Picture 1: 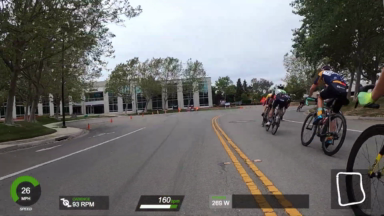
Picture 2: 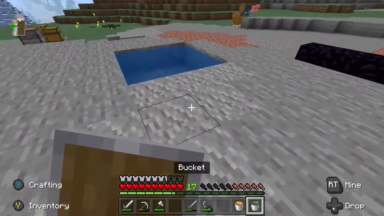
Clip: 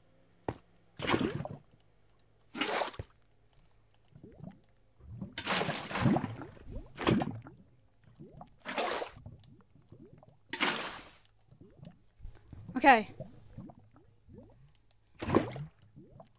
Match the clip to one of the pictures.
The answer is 2